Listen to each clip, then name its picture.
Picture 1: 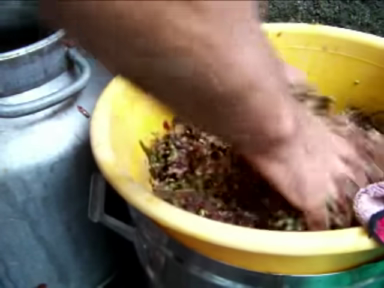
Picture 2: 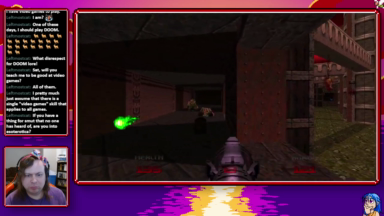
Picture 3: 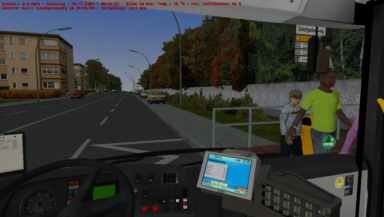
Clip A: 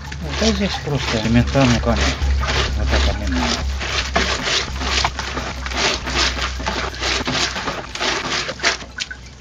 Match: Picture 1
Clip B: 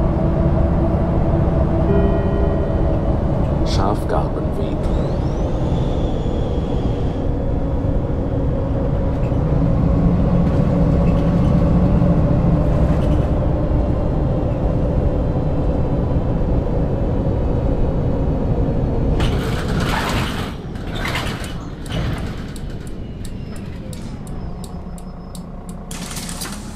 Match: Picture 3